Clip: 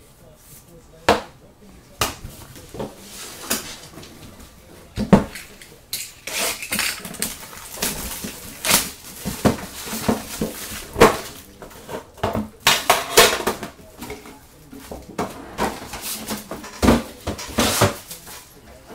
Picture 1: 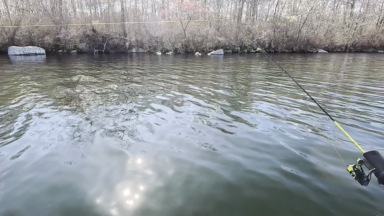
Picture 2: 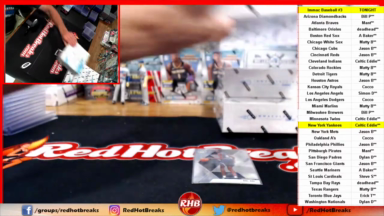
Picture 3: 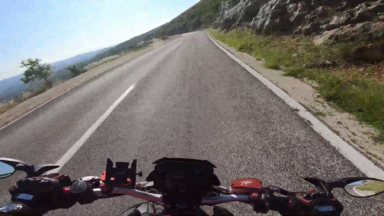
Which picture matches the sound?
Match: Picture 2